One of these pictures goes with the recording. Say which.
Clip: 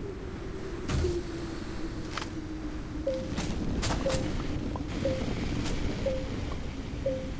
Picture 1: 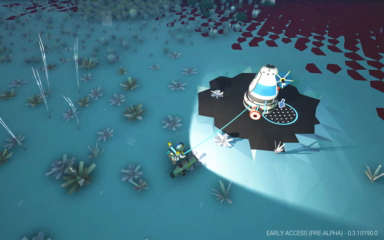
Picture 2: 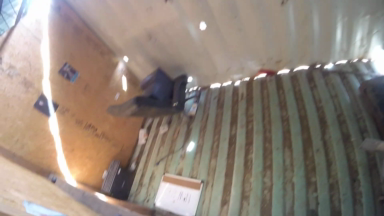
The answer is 1